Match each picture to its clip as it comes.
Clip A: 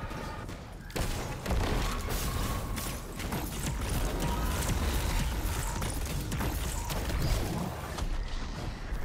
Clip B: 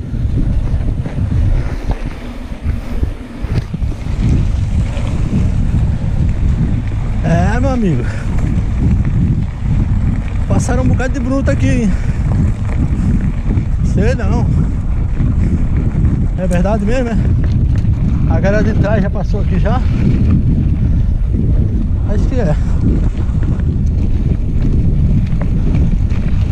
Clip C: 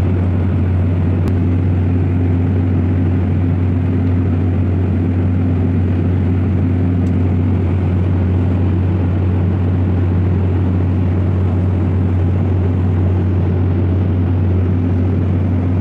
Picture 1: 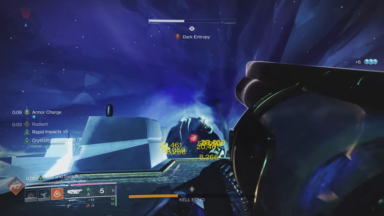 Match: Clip A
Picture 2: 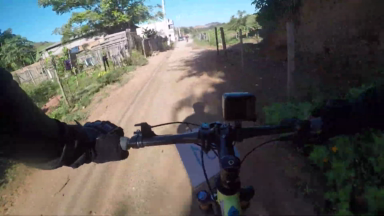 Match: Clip B